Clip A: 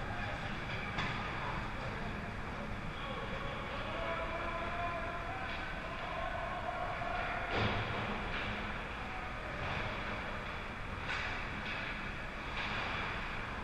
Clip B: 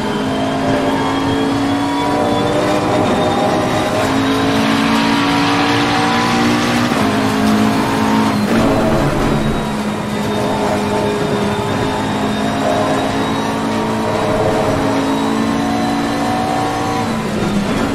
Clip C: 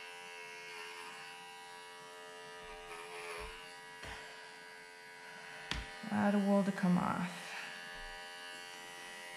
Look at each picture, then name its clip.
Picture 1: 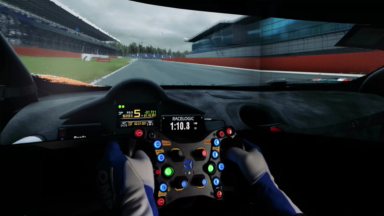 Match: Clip B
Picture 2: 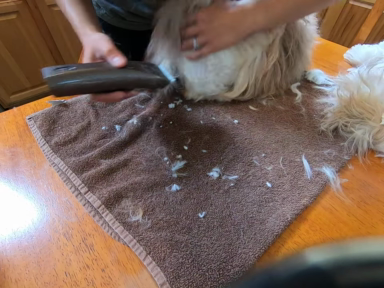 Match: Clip C